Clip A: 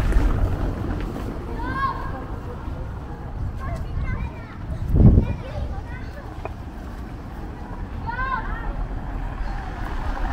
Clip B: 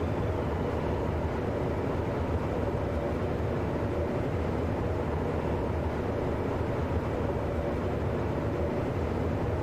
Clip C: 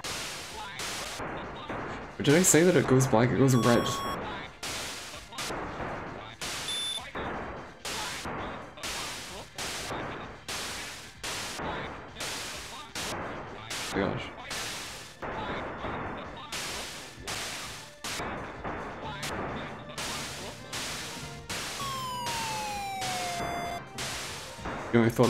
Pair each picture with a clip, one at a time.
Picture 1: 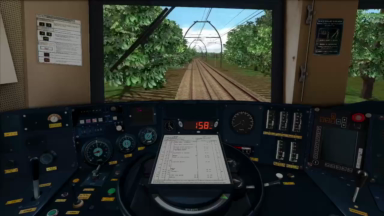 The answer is B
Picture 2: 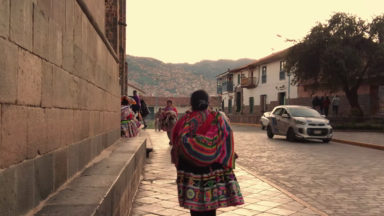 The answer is A